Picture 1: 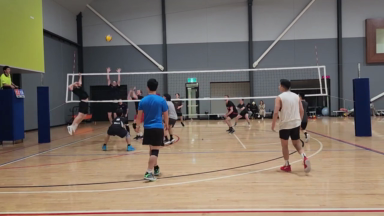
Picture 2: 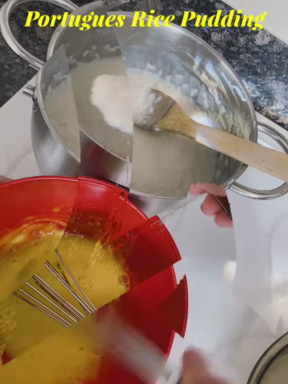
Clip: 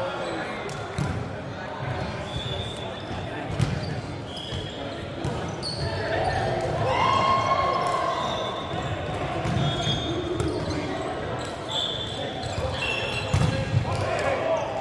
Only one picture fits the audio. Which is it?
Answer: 1